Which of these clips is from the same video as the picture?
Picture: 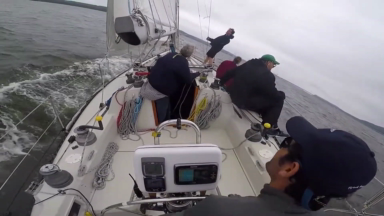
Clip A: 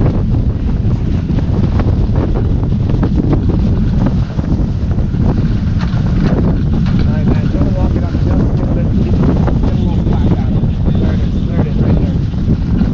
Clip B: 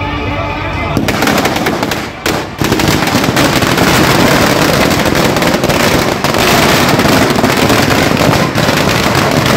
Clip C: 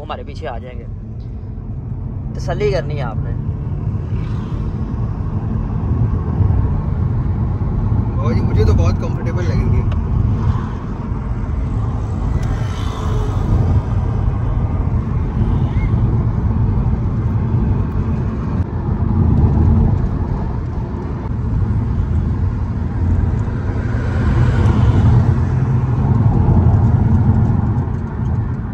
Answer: A